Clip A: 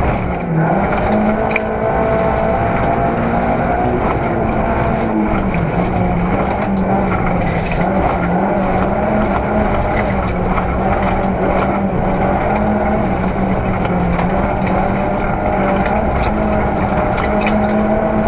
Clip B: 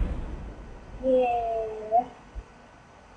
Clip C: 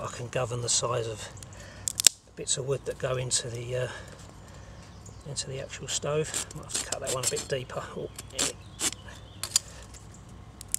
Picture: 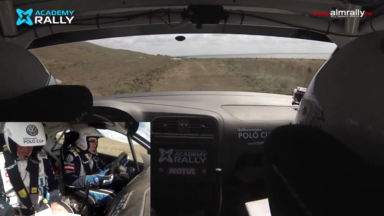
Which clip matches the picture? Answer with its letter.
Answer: A